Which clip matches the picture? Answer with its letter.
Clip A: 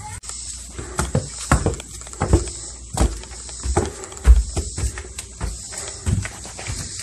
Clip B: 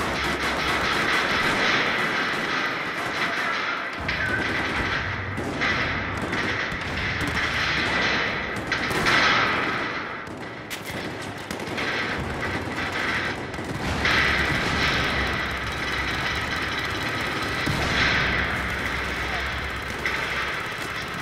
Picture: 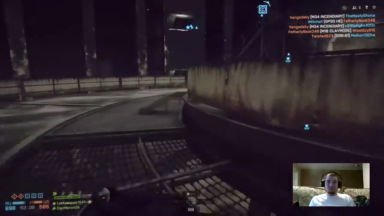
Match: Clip B